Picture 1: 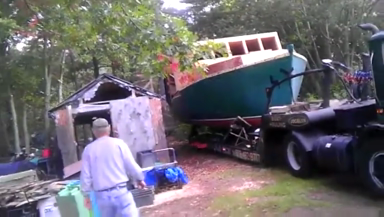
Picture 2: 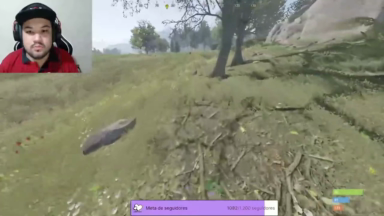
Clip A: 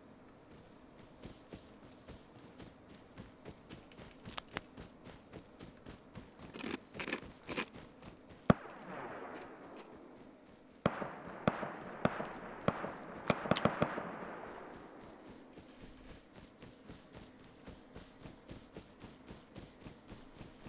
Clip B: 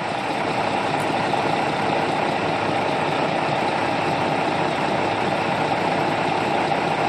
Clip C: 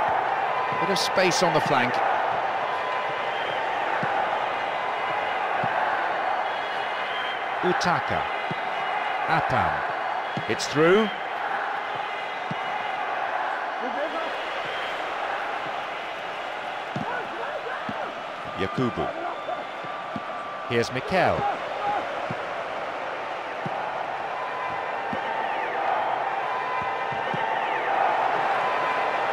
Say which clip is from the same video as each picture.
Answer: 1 B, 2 A